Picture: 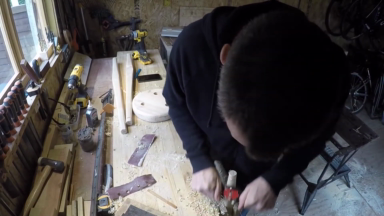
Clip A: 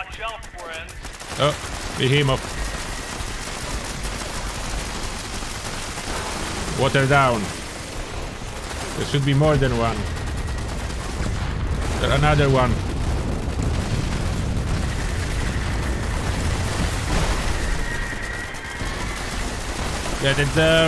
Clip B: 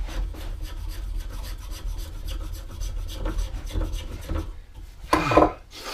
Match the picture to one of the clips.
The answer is B